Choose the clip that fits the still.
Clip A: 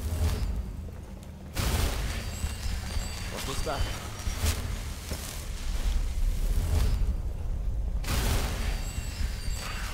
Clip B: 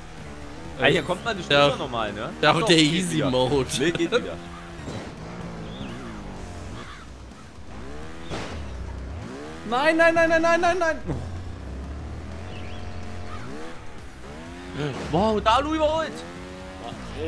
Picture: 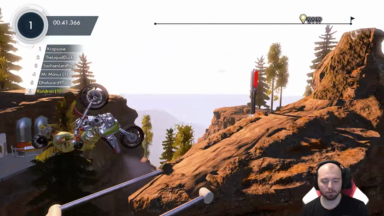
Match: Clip B